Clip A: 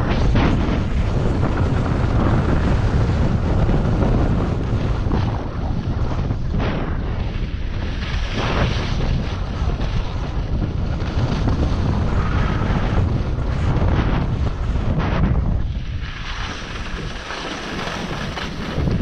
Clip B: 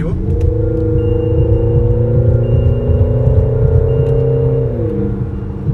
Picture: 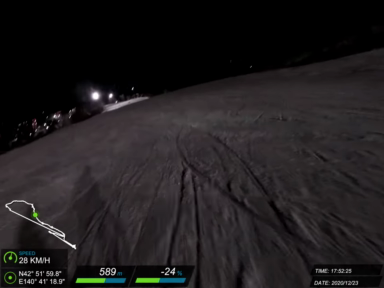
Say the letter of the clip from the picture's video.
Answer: A